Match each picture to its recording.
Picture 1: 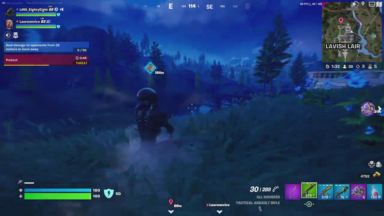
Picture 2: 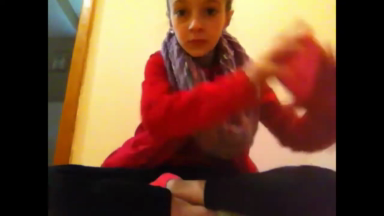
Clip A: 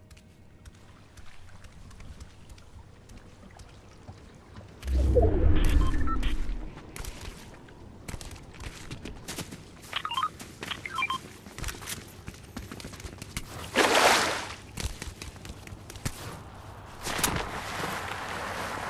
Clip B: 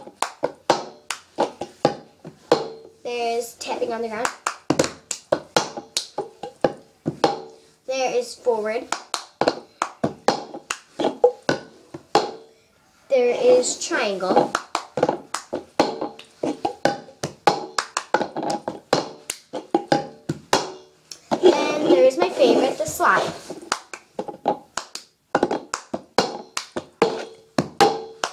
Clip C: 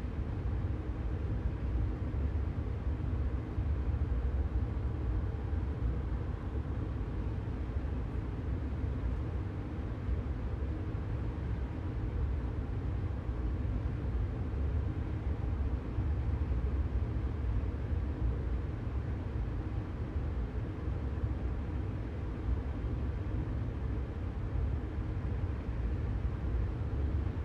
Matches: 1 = A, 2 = B